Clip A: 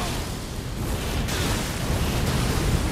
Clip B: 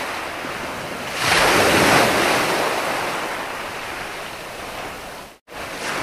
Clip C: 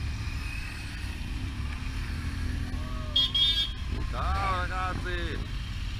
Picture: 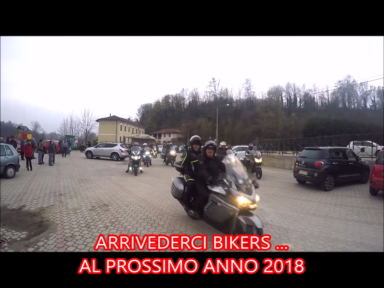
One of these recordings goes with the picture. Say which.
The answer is C